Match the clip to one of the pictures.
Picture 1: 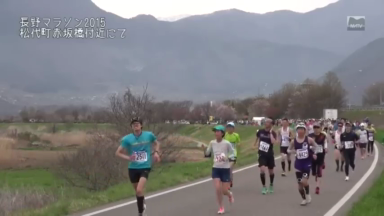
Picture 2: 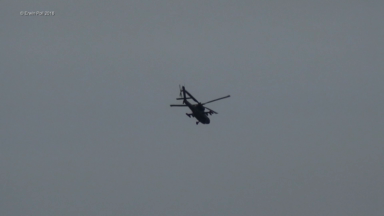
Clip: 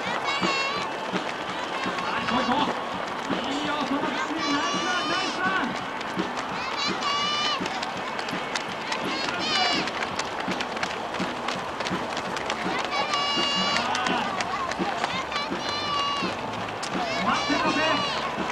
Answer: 1